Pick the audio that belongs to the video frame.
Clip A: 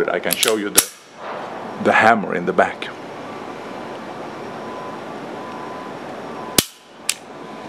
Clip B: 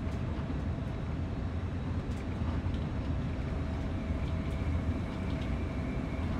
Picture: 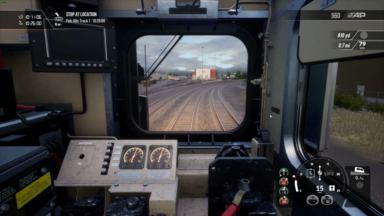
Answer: B